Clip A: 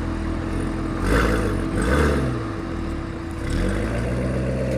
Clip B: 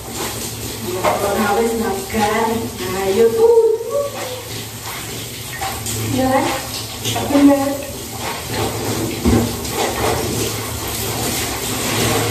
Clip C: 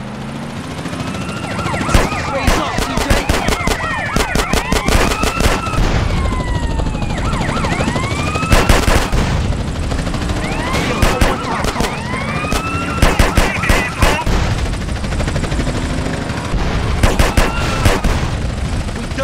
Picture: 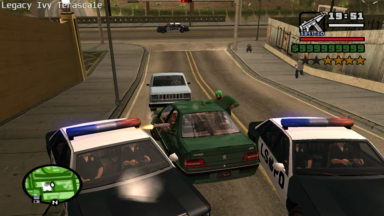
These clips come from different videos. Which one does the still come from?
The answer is C